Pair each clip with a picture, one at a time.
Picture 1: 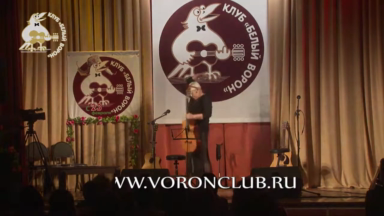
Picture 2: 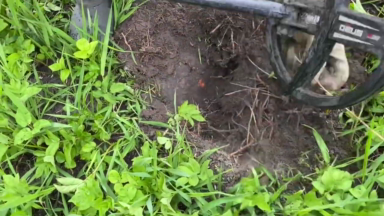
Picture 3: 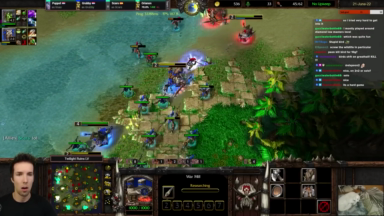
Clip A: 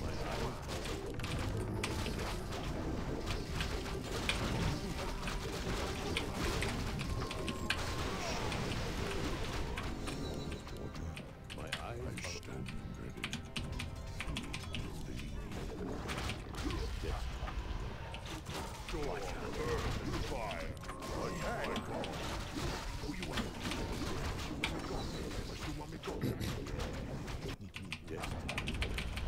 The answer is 3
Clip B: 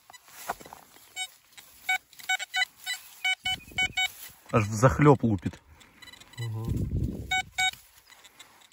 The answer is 2